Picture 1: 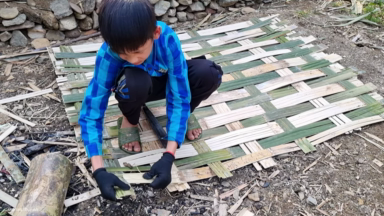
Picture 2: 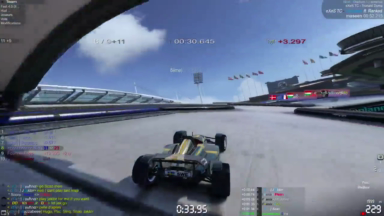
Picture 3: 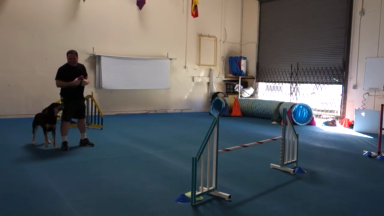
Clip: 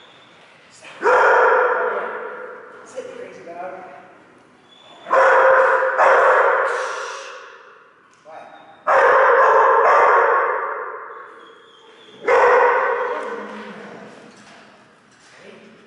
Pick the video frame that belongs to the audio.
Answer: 3